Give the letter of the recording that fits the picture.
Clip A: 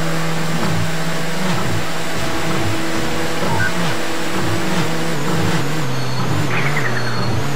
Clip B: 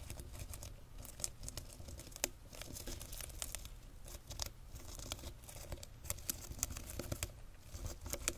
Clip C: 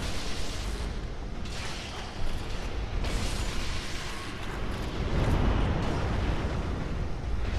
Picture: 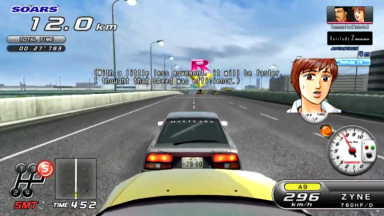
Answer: A